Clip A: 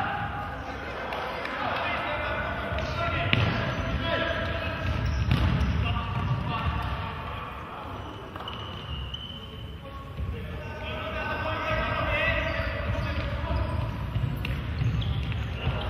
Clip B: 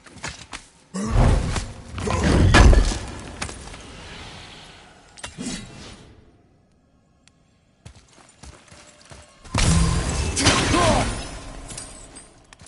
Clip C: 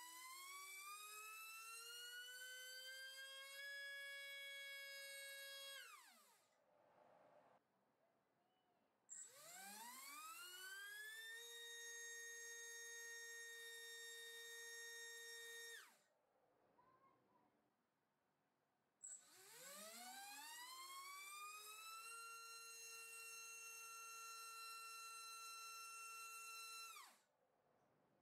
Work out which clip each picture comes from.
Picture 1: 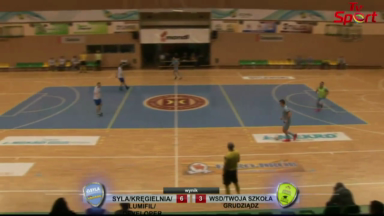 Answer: A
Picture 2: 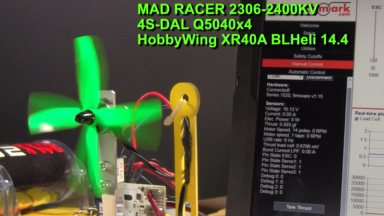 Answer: C